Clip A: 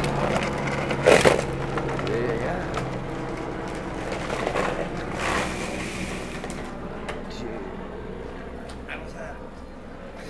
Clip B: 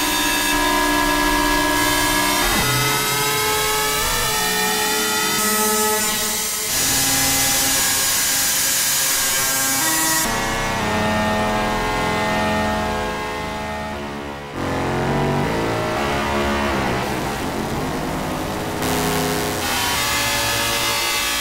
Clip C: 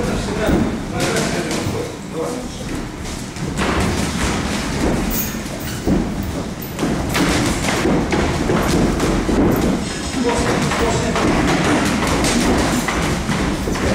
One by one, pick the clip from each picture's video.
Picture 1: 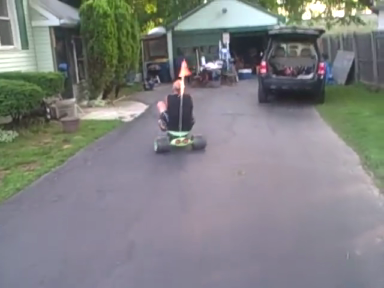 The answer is A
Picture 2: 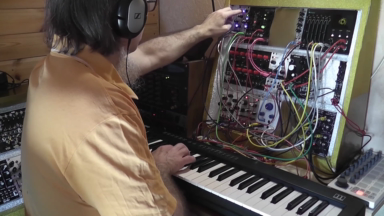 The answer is B